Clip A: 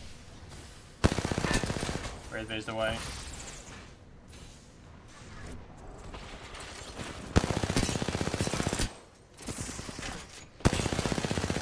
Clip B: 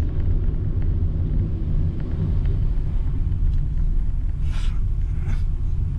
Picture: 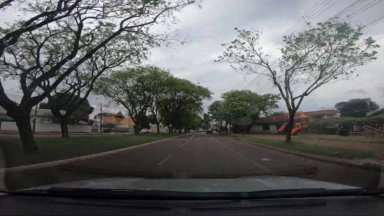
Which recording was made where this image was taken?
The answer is B